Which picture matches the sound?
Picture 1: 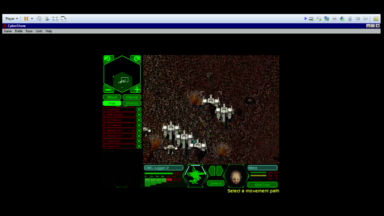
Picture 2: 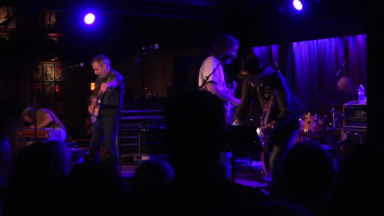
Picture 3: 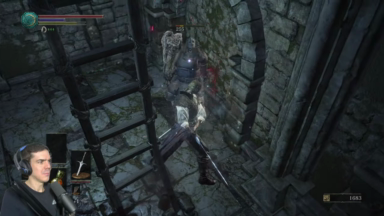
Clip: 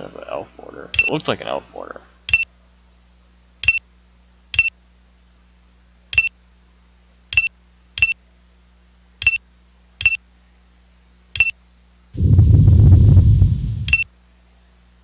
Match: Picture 1